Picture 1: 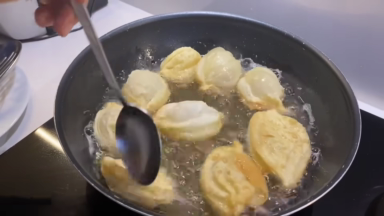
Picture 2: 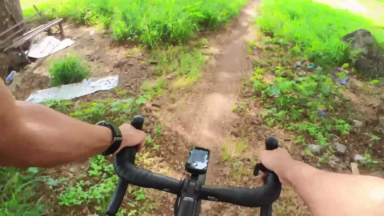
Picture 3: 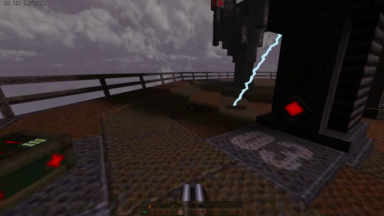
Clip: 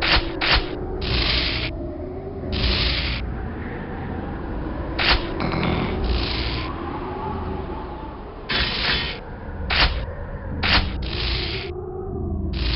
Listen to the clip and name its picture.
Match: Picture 3